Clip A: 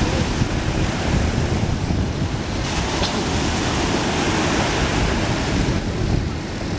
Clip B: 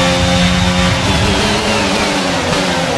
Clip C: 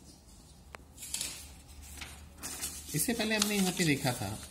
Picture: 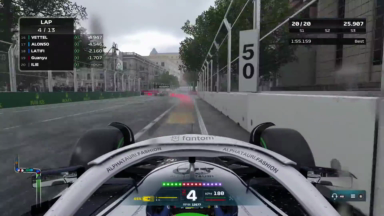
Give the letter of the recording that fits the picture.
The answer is B